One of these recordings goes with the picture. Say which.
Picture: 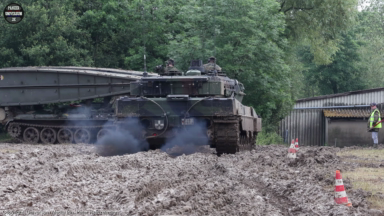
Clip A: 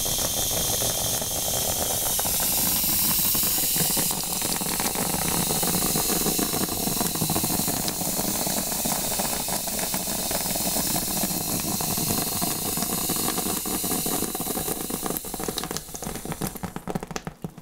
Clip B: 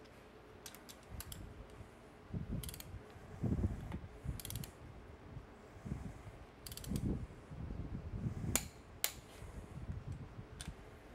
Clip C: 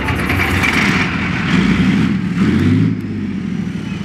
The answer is C